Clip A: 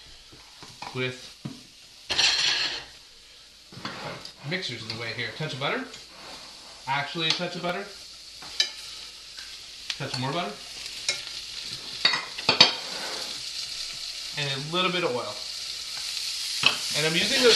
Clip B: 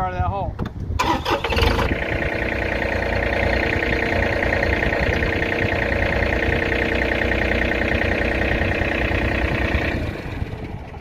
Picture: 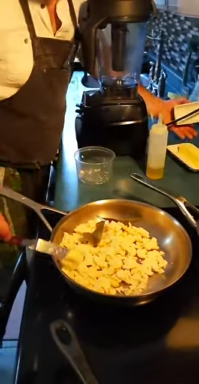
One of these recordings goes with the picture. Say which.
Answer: A